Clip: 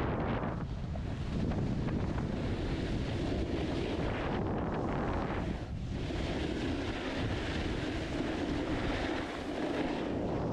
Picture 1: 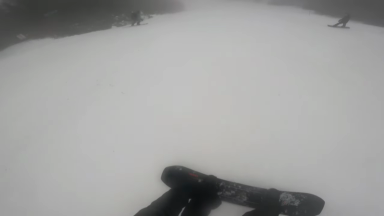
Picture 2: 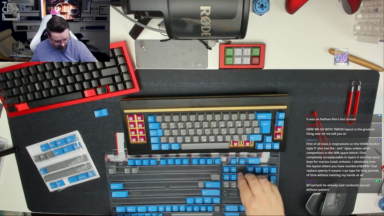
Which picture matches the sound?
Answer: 1